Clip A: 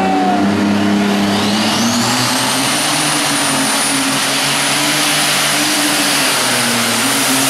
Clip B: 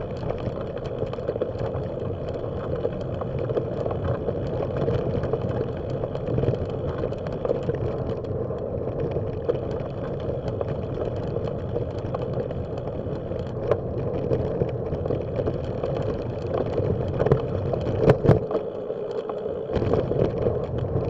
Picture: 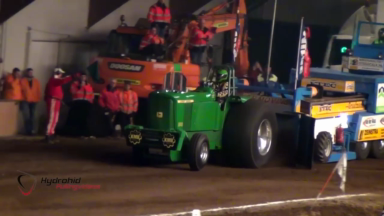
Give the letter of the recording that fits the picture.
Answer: A